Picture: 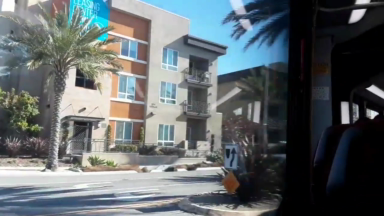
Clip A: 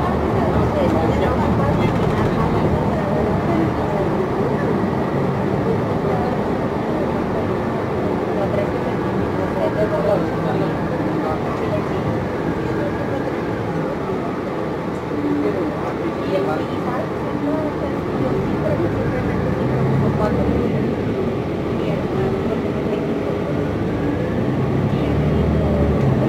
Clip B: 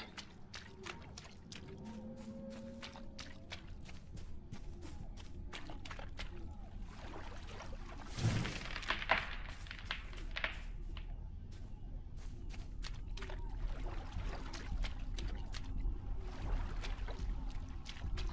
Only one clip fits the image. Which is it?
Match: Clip A